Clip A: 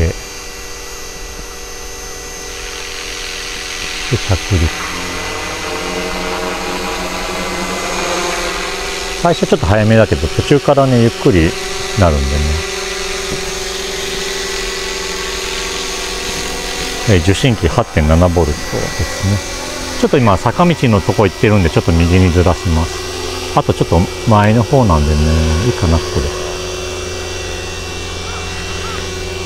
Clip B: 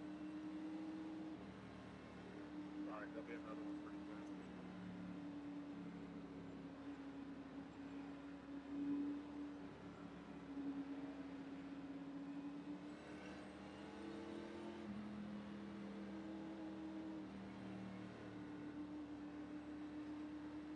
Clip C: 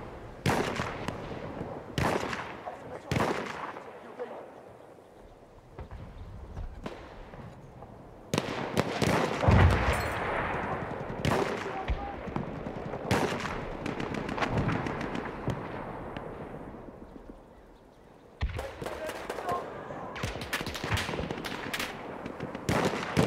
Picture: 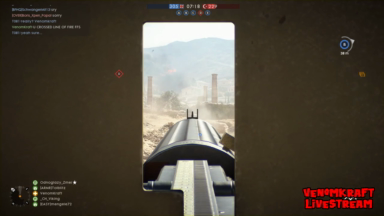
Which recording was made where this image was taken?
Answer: C